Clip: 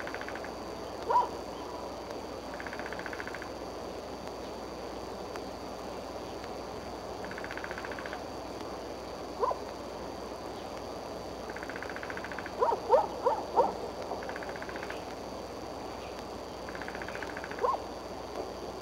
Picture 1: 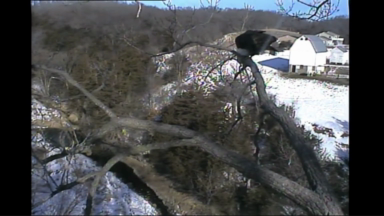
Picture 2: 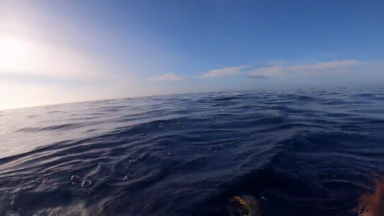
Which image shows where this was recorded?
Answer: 1